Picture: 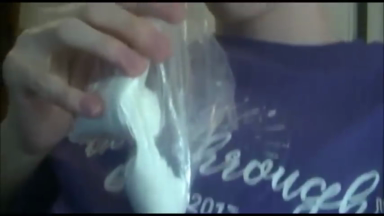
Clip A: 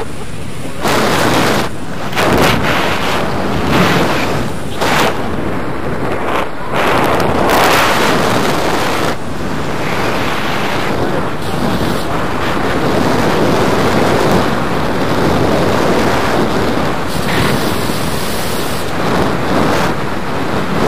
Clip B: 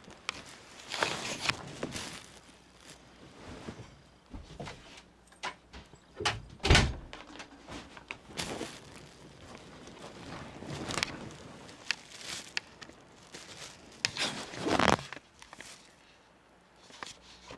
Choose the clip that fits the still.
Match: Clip B